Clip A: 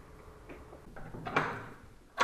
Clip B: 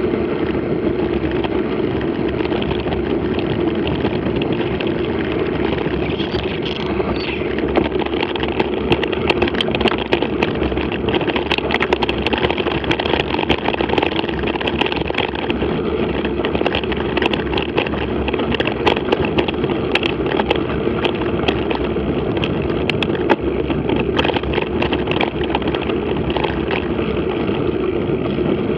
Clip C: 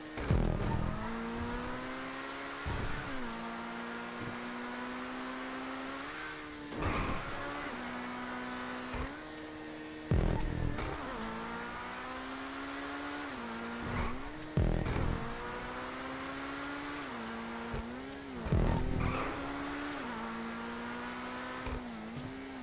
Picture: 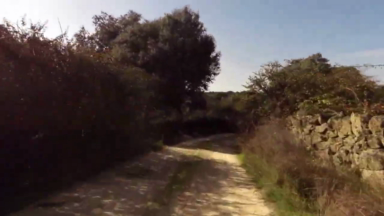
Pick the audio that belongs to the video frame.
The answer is B